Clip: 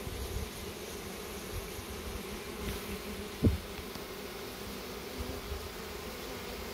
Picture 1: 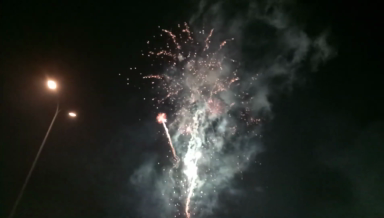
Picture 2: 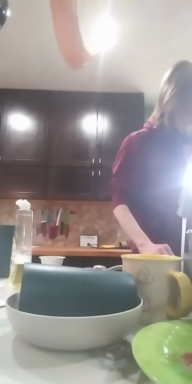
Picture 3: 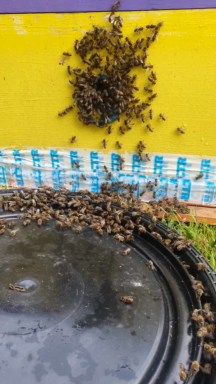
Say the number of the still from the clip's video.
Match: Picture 3